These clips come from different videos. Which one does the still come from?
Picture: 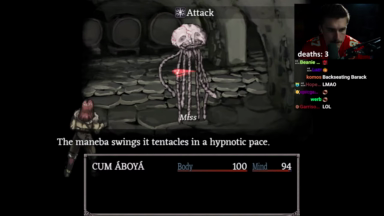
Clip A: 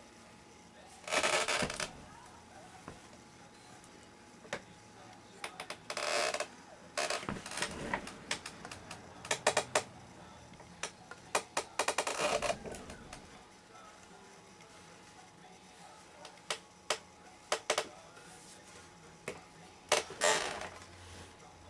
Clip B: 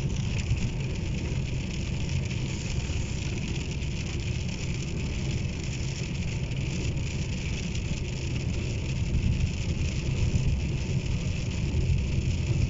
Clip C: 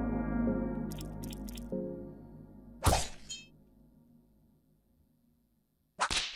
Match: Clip C